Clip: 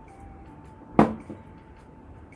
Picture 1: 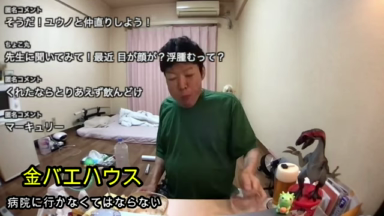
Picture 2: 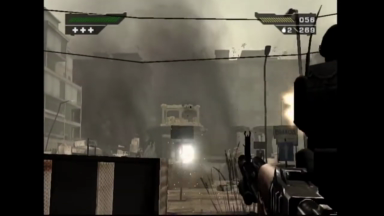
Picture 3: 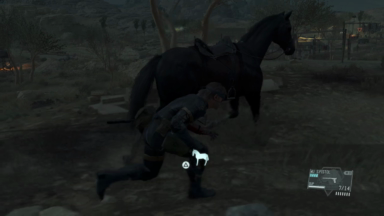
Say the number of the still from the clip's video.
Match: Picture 1